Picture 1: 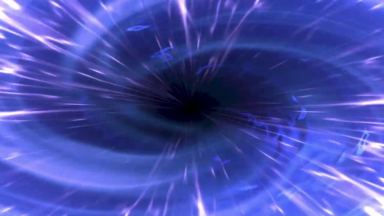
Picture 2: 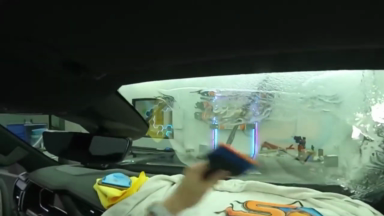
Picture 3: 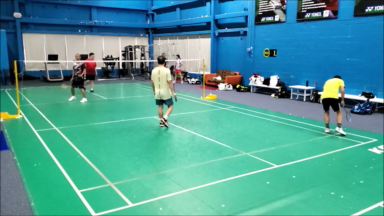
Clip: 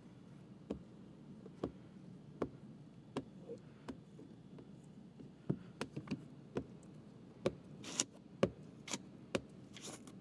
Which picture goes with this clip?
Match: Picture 2